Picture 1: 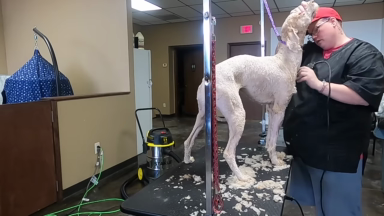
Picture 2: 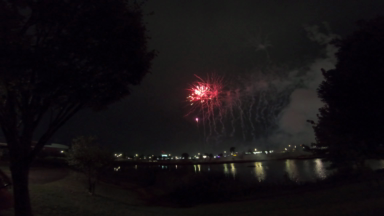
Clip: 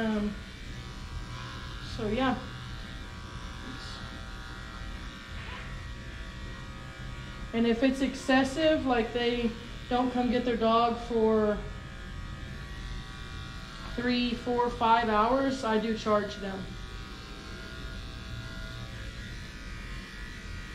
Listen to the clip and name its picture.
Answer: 1